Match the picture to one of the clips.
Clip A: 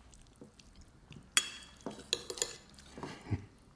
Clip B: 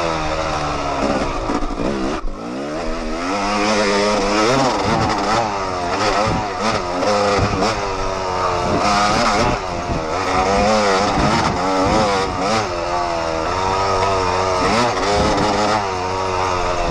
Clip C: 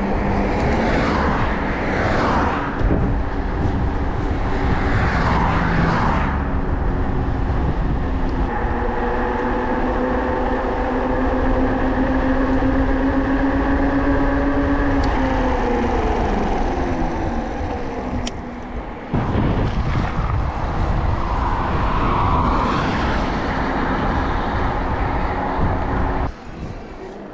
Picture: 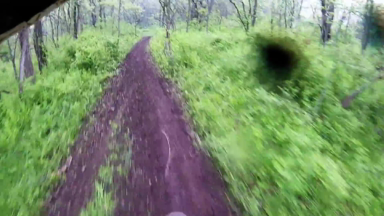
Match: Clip B